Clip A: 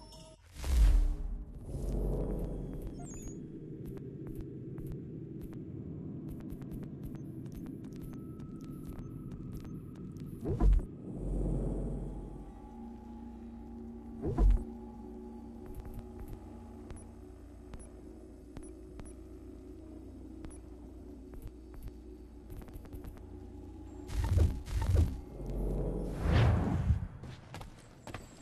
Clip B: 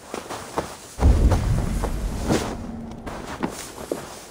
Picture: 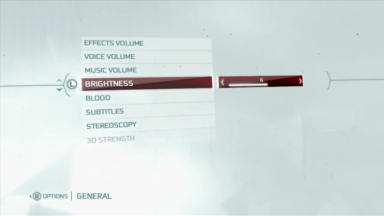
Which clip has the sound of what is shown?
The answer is A